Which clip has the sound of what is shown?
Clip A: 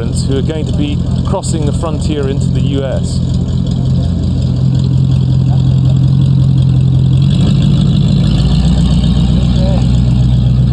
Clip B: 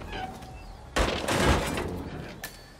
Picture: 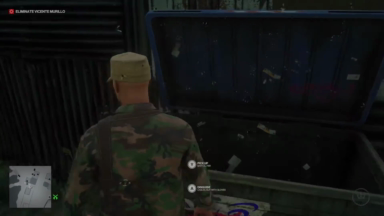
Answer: B